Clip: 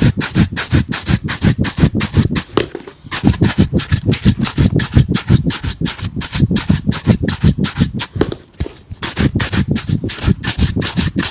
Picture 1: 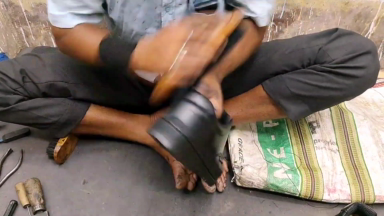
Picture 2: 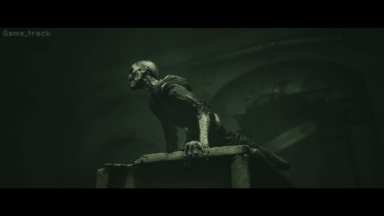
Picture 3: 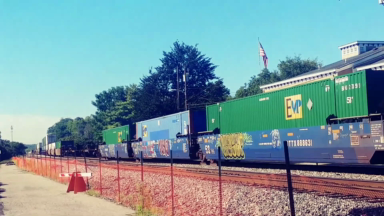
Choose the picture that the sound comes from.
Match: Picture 1